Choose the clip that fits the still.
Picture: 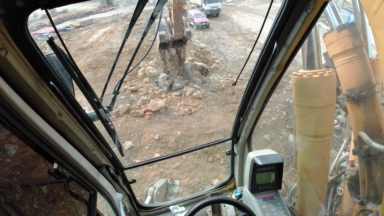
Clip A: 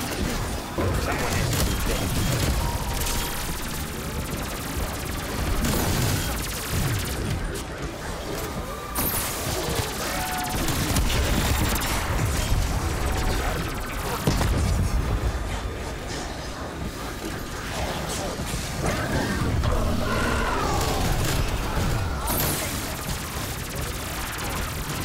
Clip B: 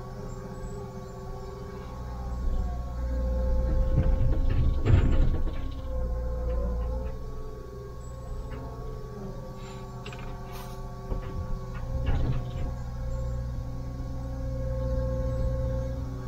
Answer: B